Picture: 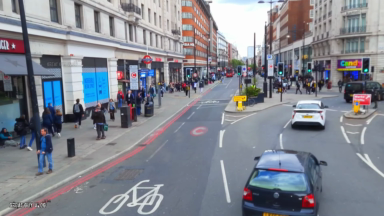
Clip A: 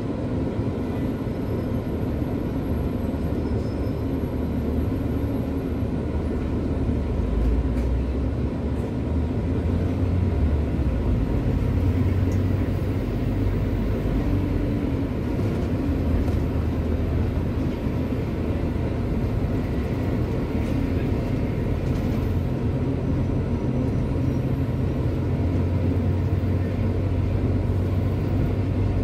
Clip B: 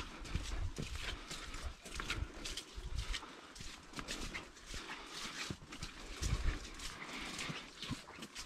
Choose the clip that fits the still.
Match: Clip A